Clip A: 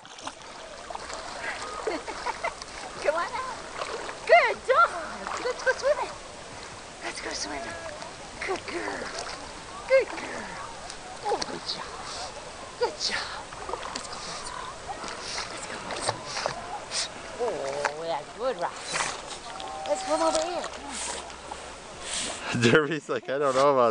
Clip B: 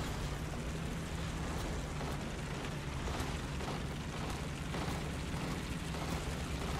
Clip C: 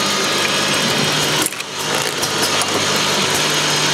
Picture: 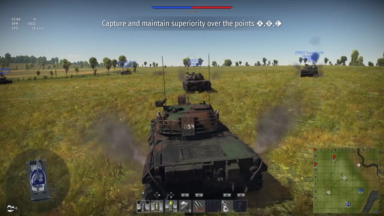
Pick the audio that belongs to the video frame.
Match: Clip B